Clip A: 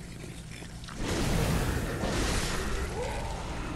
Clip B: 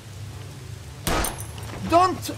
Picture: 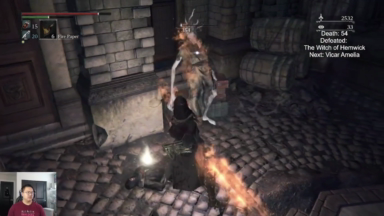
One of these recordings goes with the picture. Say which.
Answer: A